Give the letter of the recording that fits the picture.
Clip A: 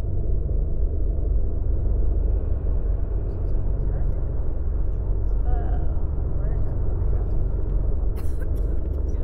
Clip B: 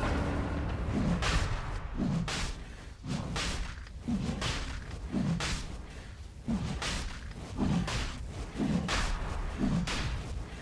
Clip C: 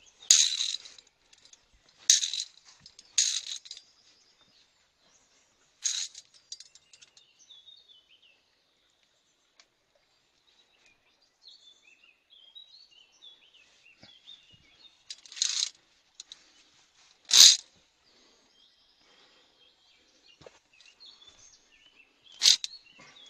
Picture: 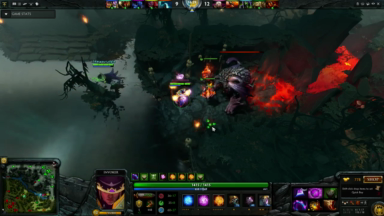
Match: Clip B